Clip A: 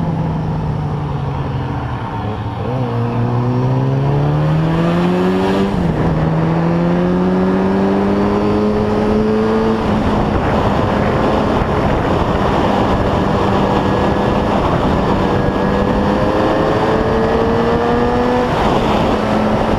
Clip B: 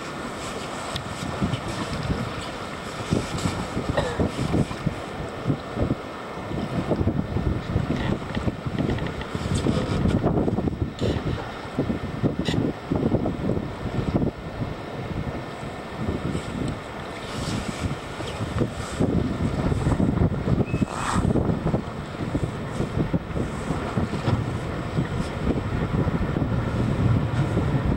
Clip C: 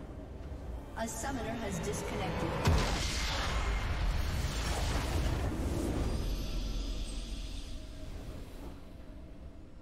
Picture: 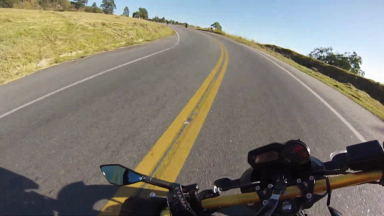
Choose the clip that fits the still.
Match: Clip A